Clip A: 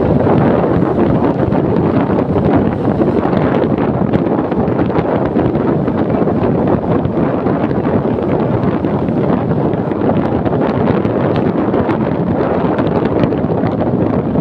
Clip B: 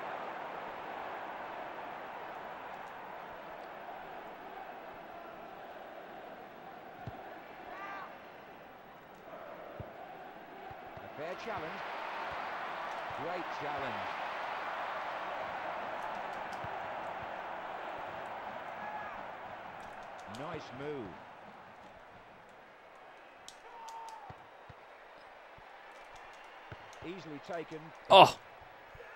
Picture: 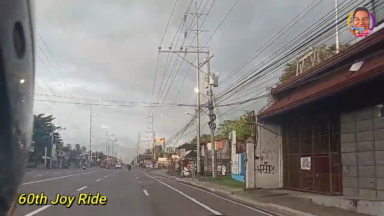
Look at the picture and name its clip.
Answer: A